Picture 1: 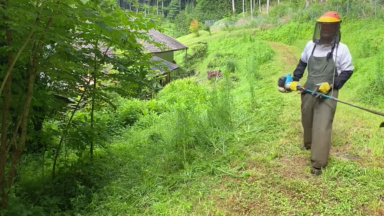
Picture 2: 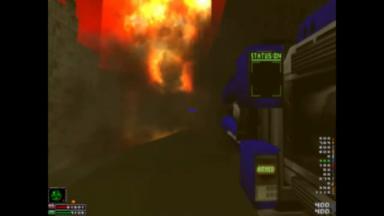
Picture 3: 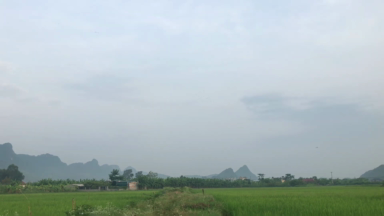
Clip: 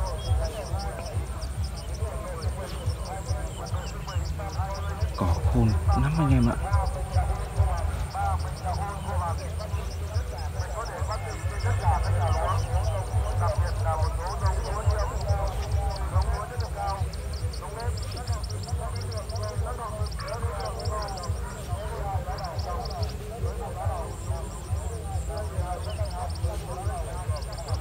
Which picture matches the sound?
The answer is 3